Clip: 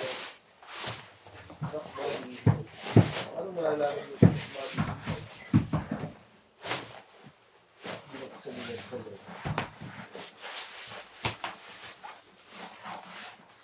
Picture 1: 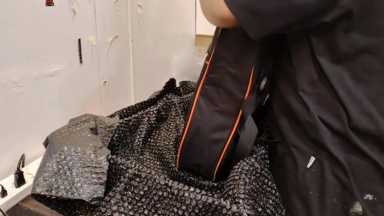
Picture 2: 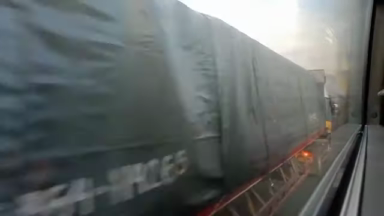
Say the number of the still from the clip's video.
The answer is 1